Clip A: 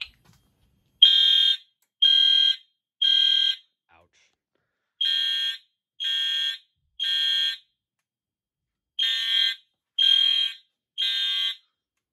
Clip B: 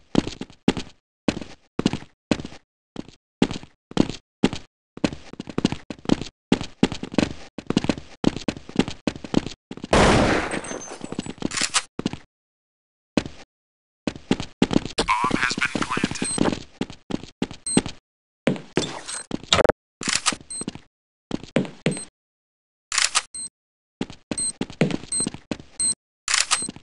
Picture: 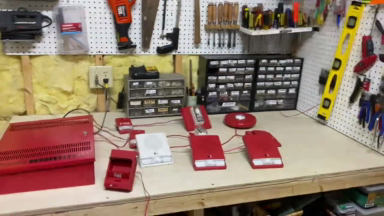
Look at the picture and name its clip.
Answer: A